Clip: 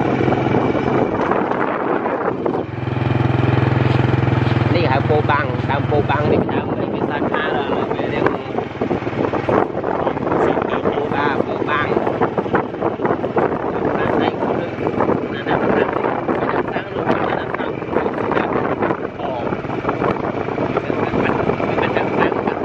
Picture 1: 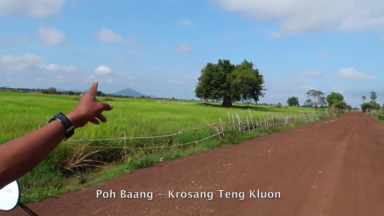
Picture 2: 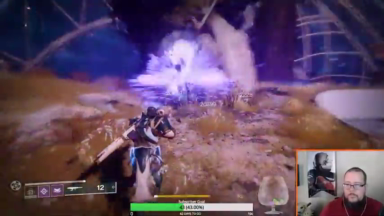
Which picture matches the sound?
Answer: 1